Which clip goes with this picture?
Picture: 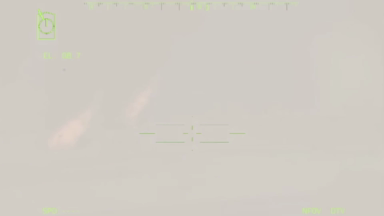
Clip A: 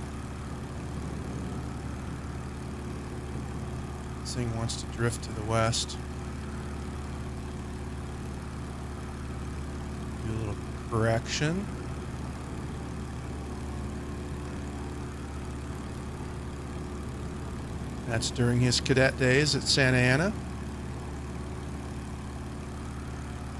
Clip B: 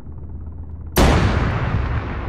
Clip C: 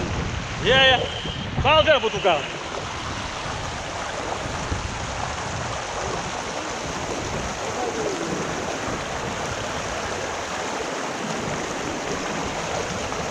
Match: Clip B